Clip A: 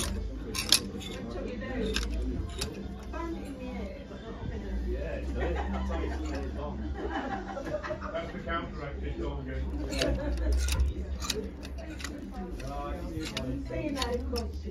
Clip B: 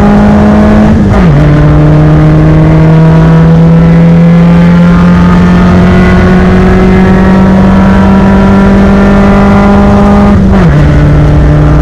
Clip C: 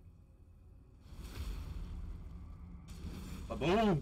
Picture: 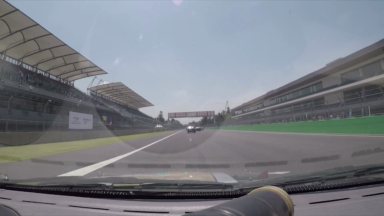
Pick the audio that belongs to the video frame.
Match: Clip B